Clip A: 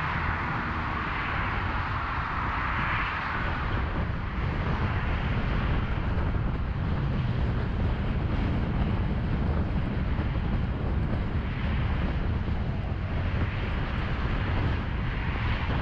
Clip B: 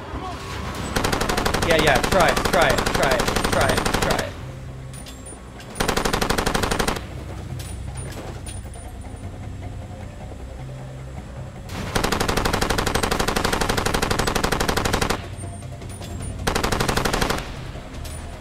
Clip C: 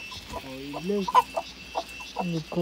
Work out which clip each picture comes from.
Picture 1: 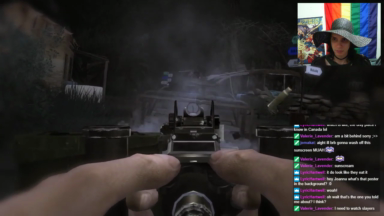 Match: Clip B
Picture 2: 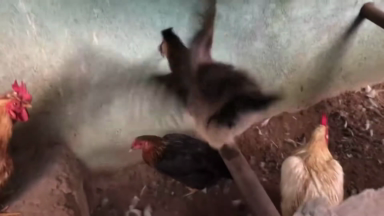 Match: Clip C